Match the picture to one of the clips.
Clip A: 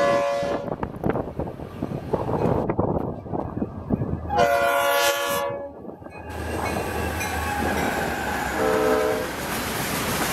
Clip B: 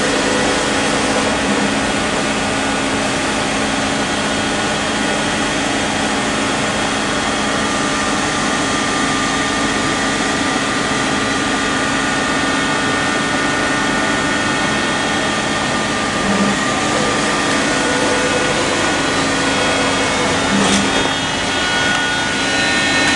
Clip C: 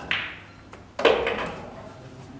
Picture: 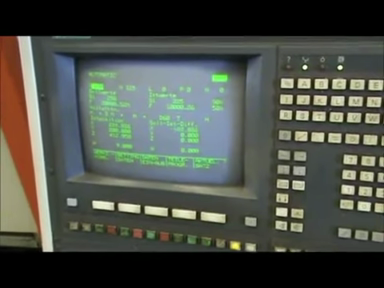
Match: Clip B